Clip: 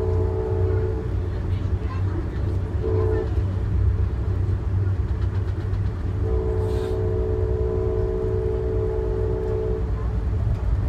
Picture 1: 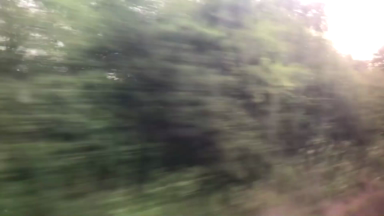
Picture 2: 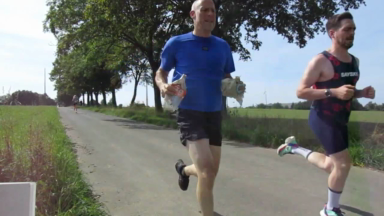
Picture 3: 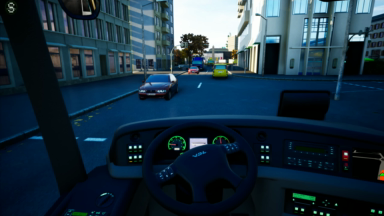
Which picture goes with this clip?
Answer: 1